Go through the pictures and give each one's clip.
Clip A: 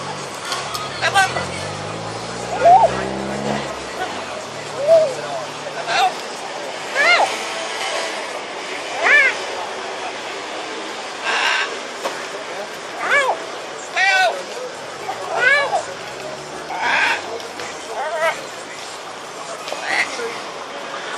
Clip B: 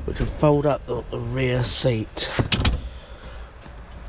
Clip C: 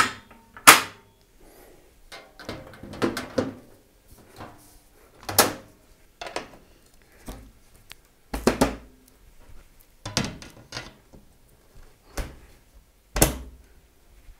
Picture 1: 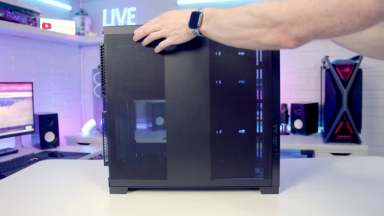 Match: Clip C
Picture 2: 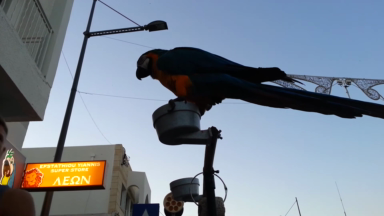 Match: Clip A